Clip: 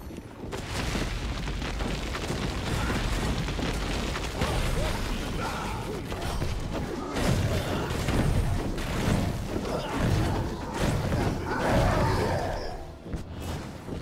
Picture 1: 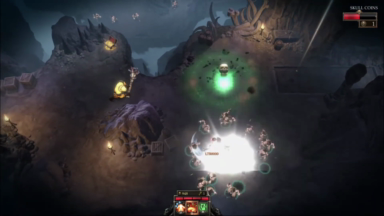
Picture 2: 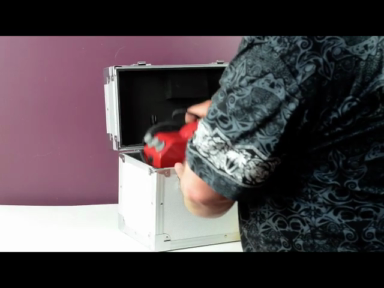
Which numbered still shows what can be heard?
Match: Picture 1